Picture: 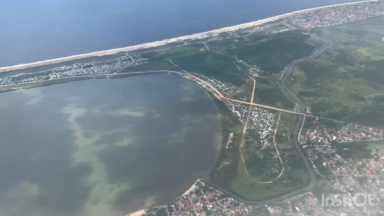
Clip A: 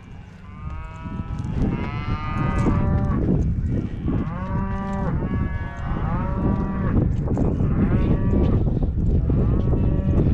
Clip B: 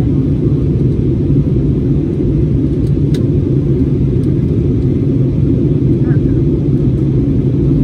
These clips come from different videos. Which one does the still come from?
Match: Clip B